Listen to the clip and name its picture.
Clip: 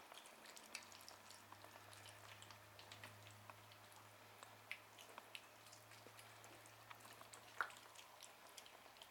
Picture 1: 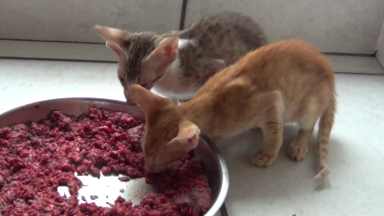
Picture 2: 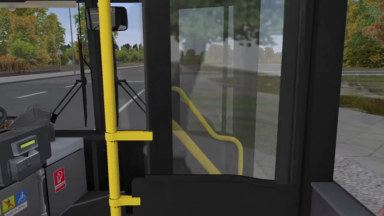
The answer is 1